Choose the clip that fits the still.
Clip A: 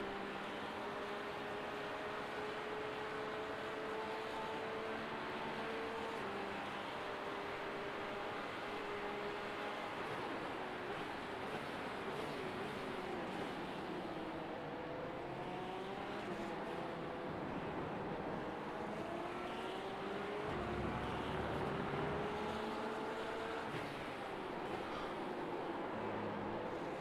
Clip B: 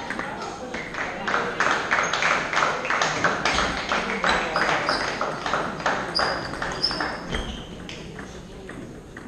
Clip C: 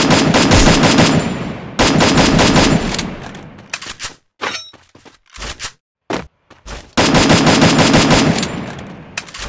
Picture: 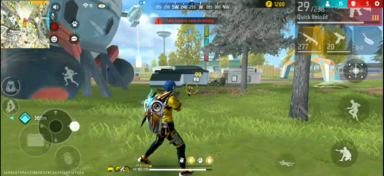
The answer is C